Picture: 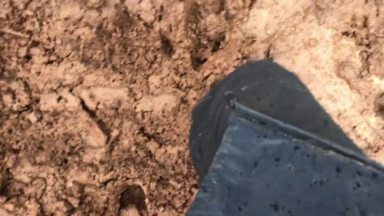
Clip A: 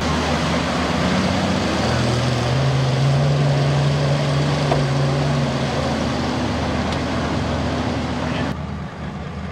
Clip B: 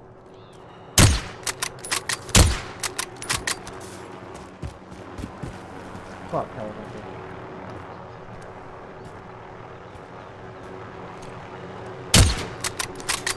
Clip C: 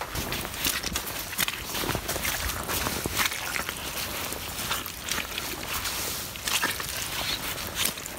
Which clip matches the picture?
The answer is C